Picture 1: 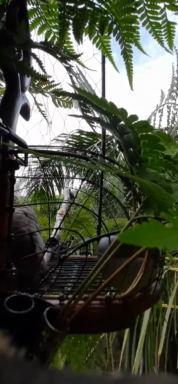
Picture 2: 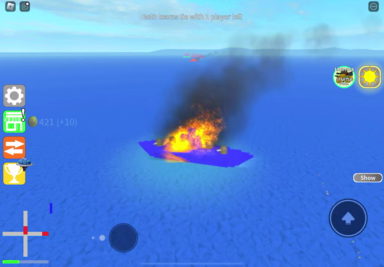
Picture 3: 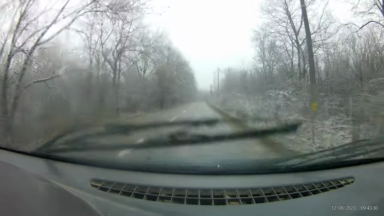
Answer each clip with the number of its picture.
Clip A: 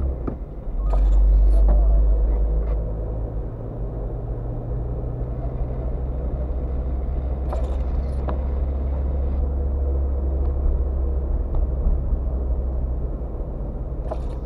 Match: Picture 3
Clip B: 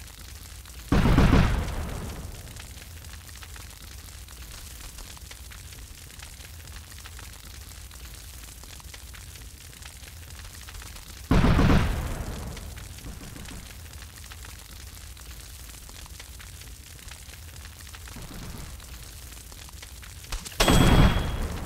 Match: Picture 2